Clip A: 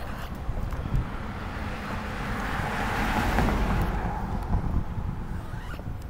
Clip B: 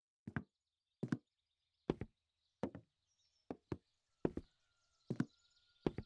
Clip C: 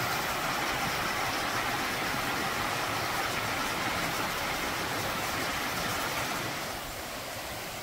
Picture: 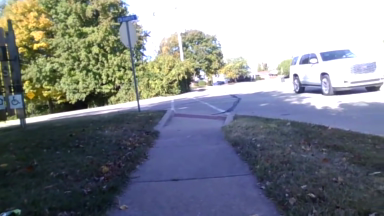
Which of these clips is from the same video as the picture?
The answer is A